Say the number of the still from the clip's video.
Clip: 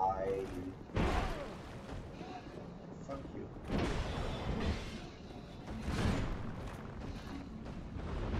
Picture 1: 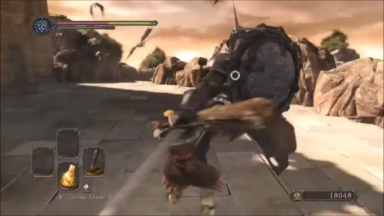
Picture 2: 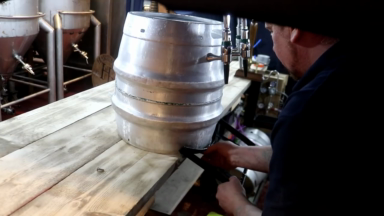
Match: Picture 1